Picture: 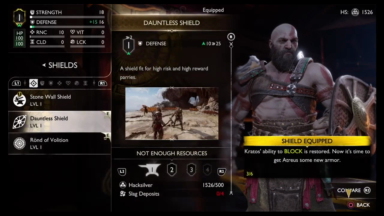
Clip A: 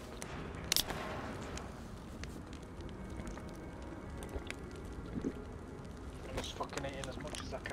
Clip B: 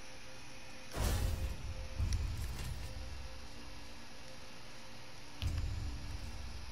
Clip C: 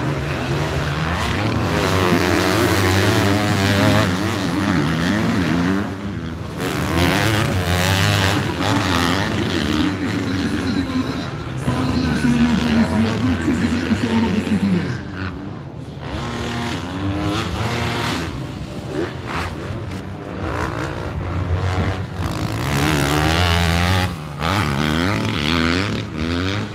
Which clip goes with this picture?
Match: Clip B